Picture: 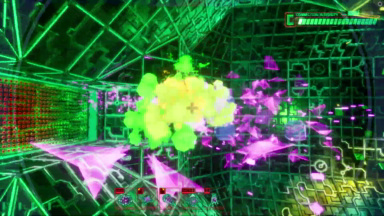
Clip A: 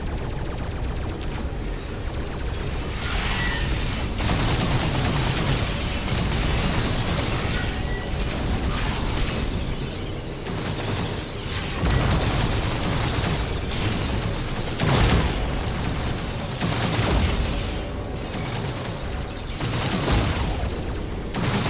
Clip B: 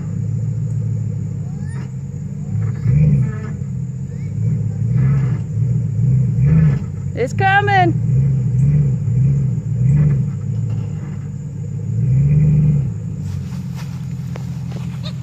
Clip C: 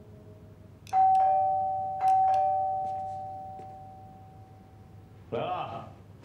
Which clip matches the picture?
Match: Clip A